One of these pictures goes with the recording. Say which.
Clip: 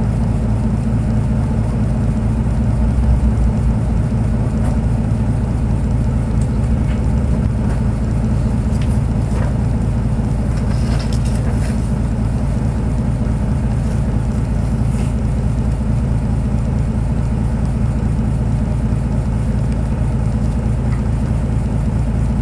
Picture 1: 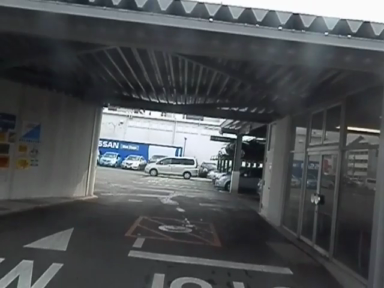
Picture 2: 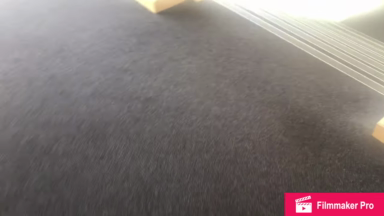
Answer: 1